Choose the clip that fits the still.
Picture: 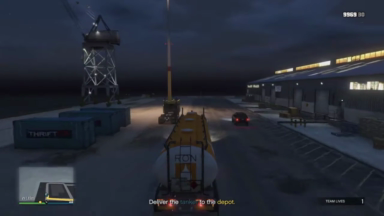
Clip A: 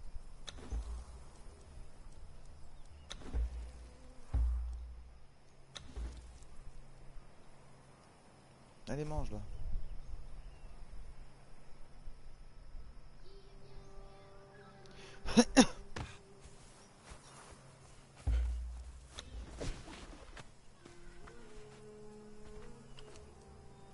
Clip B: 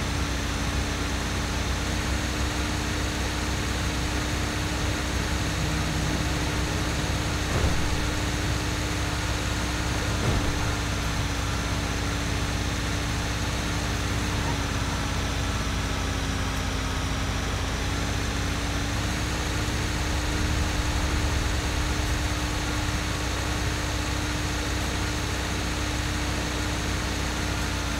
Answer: B